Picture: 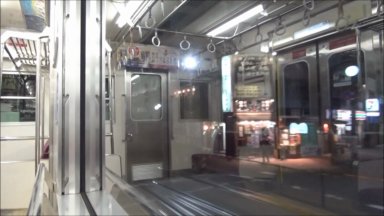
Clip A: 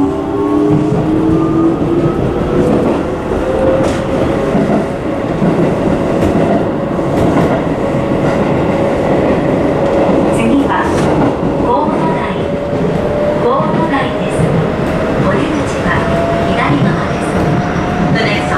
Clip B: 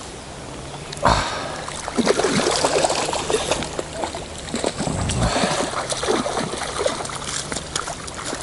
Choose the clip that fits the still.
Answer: A